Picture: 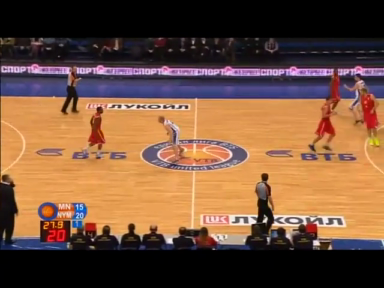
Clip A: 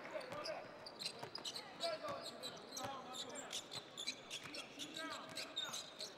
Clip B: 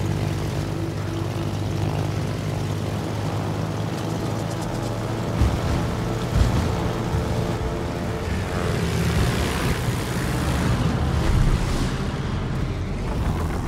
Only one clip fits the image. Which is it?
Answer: A